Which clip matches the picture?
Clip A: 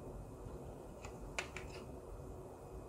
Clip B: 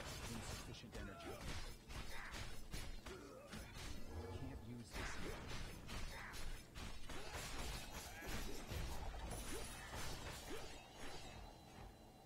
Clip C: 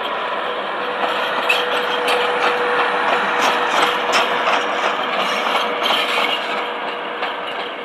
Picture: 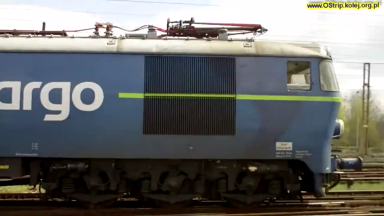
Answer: C